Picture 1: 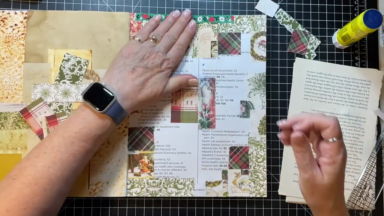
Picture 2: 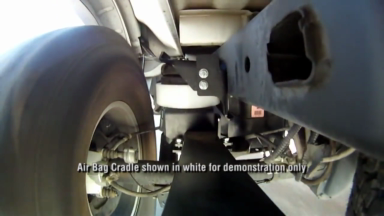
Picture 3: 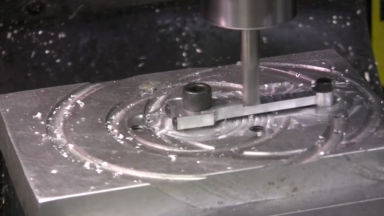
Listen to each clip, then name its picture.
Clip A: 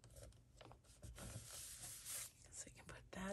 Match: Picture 1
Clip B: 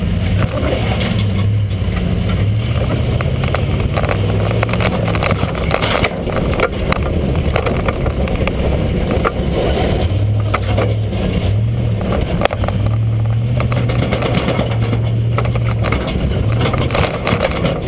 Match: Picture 2